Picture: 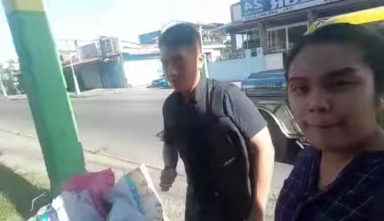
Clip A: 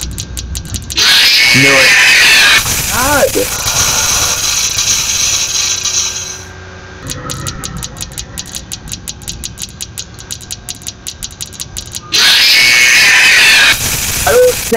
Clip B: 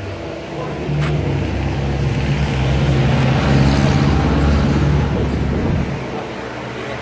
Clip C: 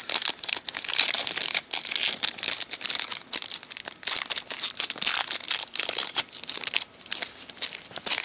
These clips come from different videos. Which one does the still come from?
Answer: B